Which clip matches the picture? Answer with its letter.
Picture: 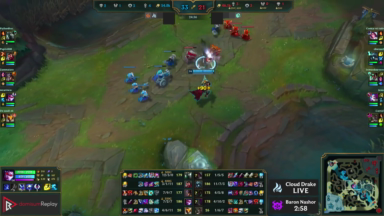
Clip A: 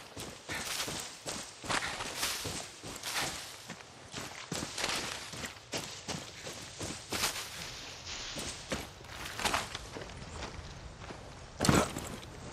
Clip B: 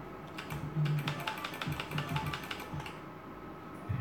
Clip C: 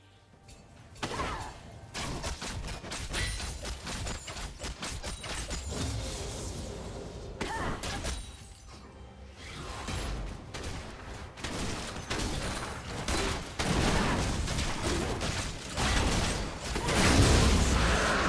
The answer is C